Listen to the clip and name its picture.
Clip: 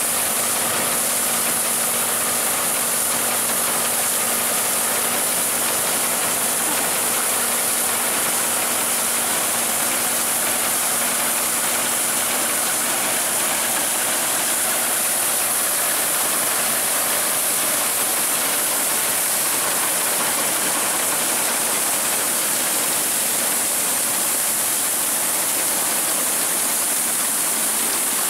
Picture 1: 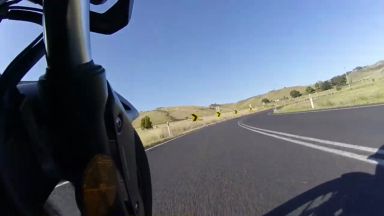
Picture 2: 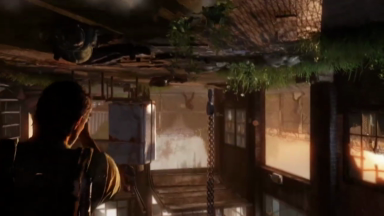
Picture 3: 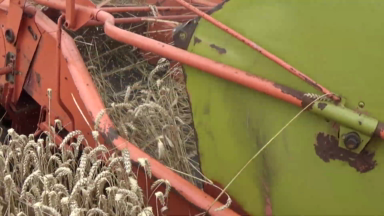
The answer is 3